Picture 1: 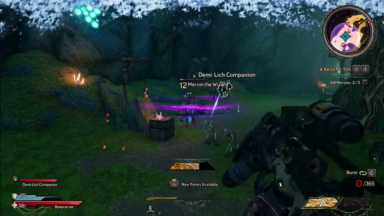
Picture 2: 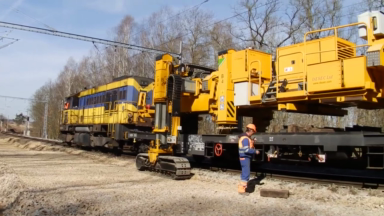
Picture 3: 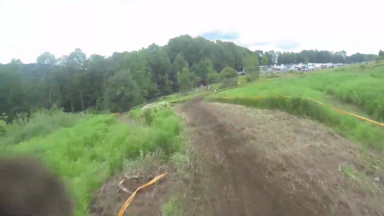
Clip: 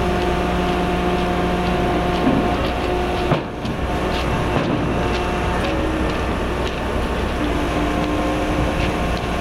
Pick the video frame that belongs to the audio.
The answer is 2